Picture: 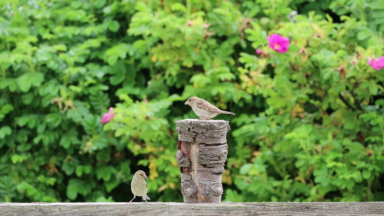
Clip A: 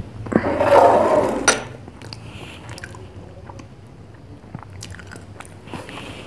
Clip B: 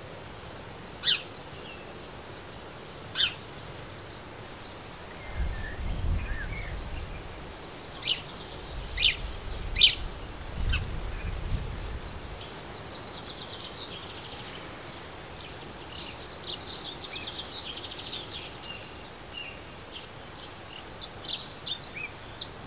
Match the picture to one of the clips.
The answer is B